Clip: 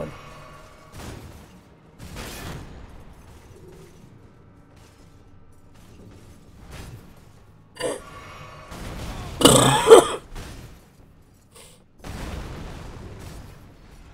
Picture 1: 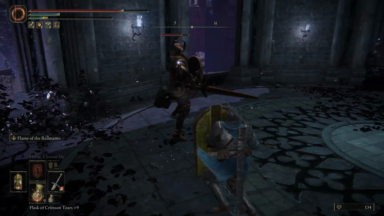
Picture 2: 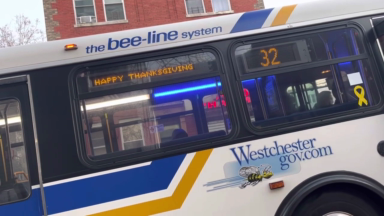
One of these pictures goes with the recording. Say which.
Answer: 1